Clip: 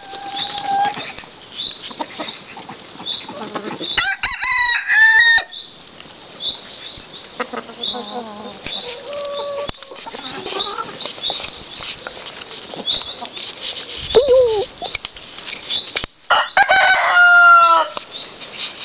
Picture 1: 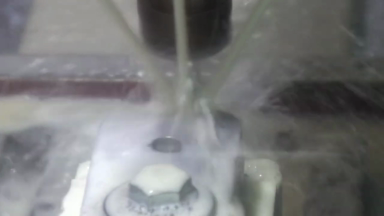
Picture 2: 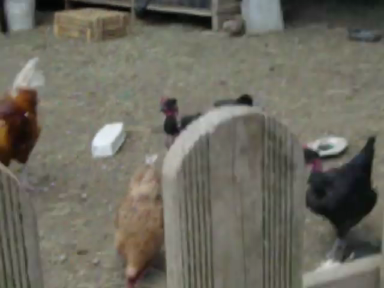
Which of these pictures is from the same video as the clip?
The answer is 2